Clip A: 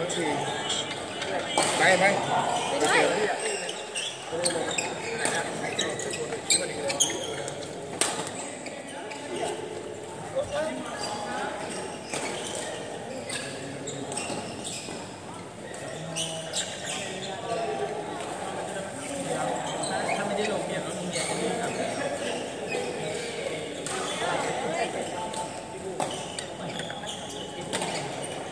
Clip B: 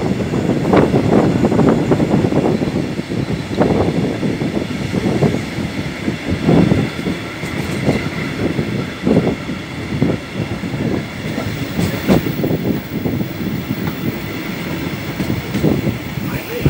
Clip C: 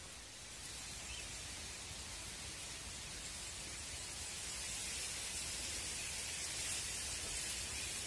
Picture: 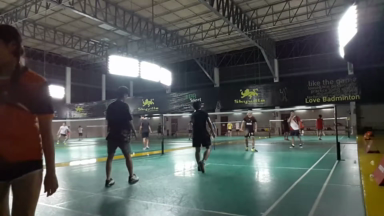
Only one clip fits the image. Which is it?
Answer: A